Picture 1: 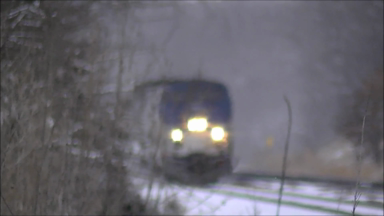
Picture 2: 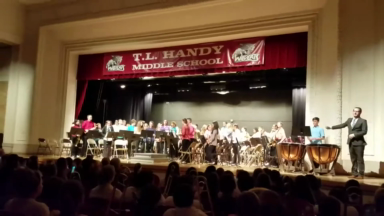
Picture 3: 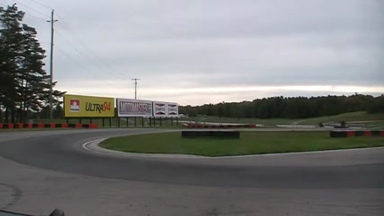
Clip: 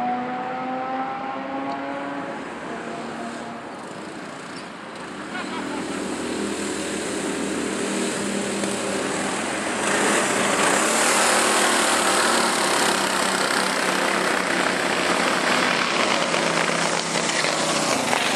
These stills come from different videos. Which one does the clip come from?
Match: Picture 3